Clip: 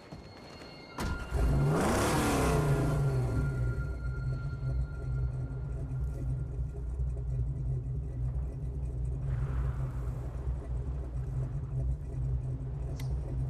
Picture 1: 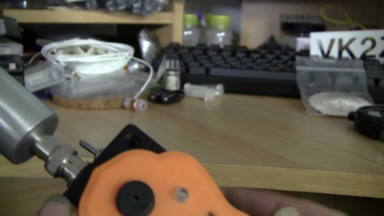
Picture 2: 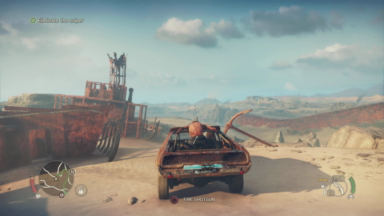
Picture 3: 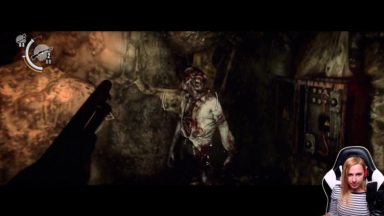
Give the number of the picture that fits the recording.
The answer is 2